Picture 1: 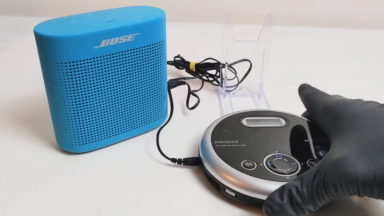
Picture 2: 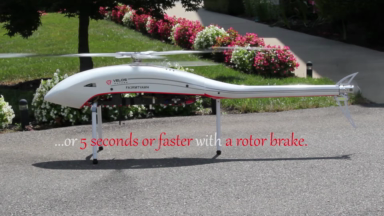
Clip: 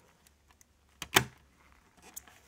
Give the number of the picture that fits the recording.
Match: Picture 1